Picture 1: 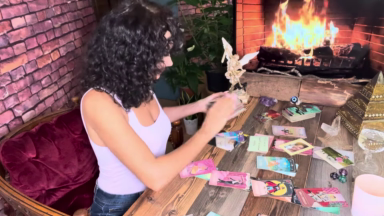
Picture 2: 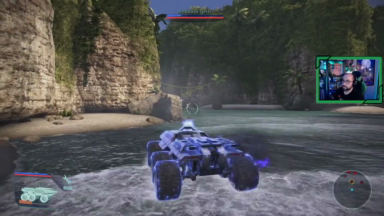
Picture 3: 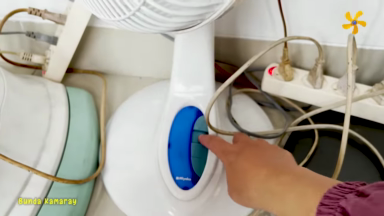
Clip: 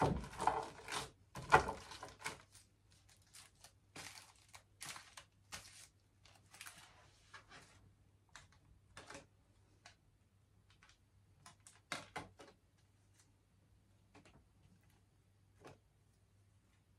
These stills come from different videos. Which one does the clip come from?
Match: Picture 1